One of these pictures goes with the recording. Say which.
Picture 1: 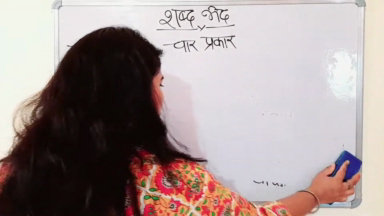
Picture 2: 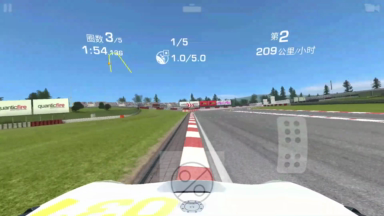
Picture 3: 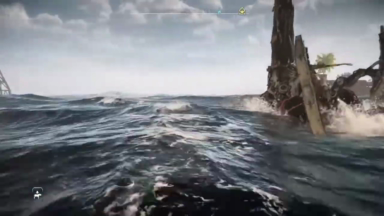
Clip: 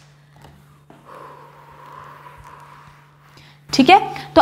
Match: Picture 1